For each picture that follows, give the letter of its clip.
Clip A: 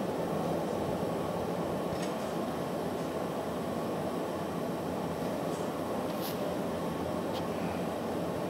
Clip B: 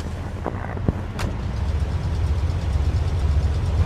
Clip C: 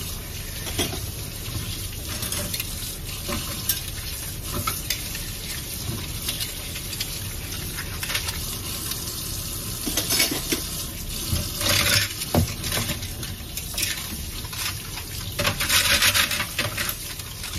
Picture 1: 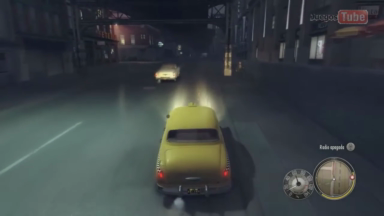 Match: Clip B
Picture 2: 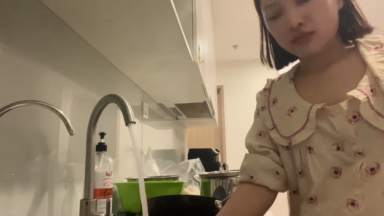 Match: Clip C